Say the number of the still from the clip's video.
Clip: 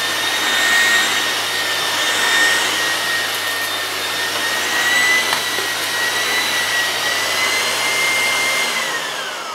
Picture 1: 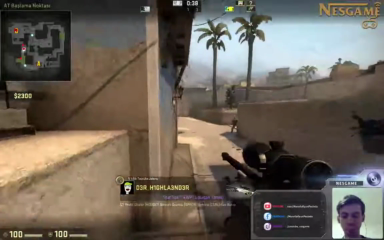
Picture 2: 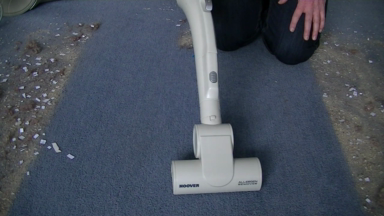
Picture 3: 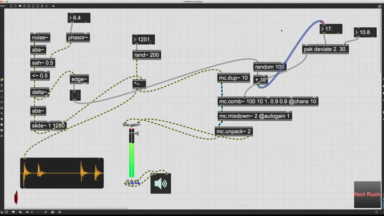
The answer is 2